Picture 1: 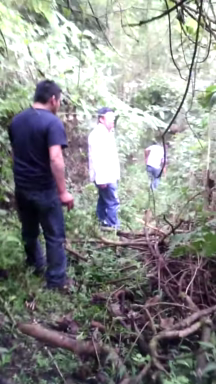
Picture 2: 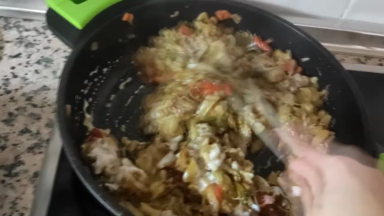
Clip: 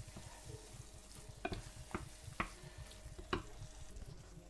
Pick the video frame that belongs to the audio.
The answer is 2